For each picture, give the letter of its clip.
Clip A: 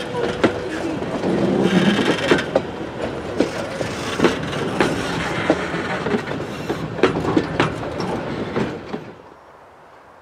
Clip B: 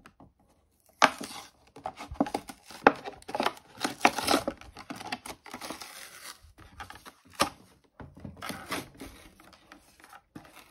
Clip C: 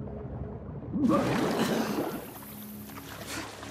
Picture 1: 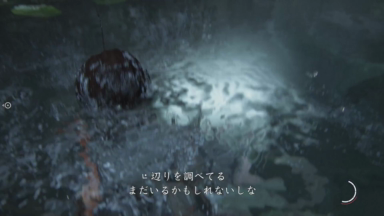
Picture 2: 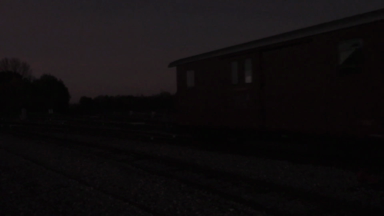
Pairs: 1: C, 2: A